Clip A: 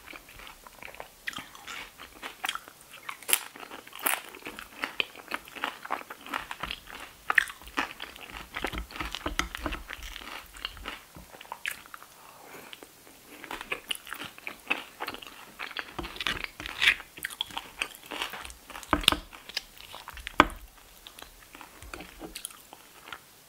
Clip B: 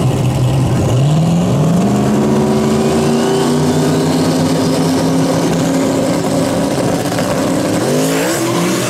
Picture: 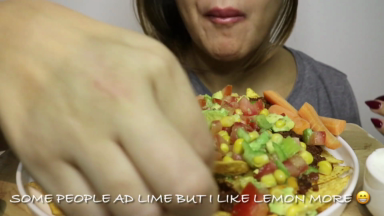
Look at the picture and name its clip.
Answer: A